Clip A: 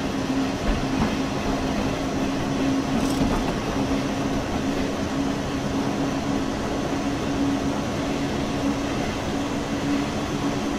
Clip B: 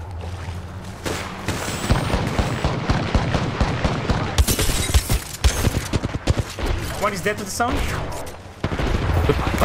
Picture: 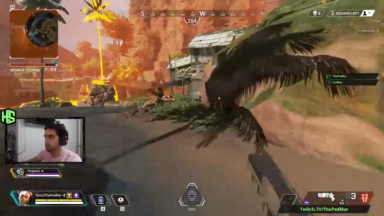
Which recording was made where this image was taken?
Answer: B